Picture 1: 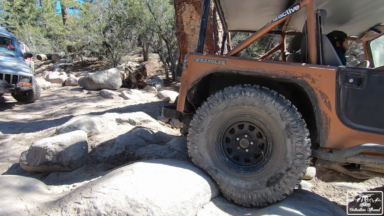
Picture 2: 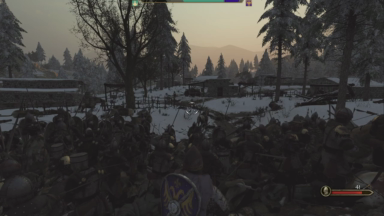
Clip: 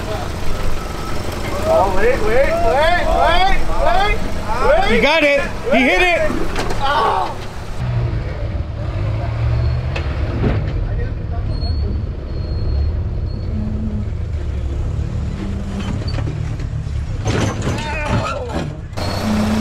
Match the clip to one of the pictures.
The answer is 1